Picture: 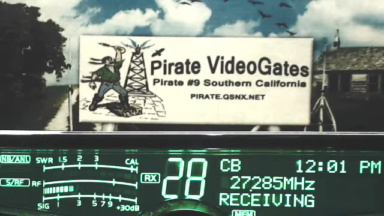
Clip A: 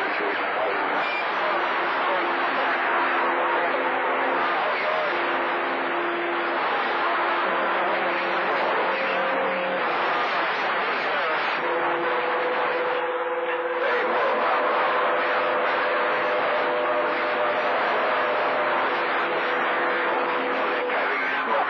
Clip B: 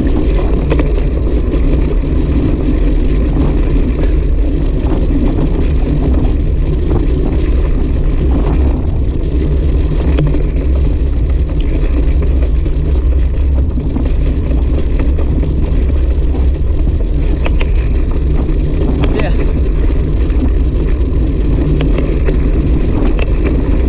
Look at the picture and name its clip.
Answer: A